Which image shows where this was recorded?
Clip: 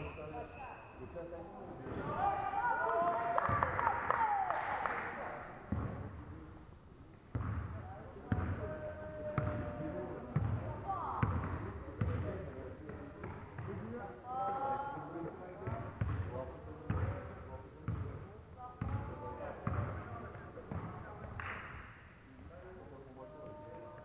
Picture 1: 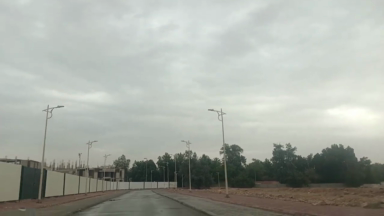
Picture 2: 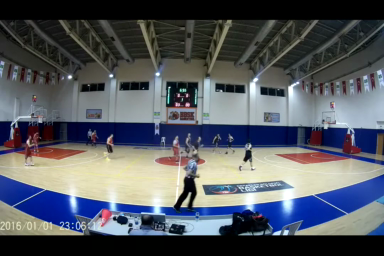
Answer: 2